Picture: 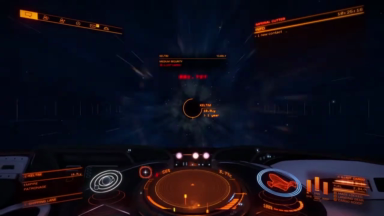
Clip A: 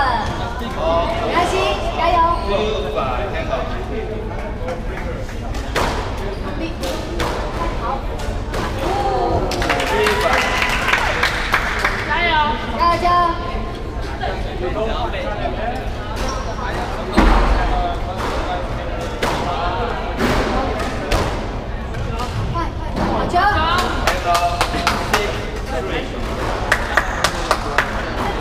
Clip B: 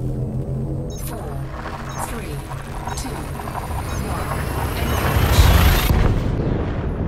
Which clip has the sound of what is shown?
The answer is B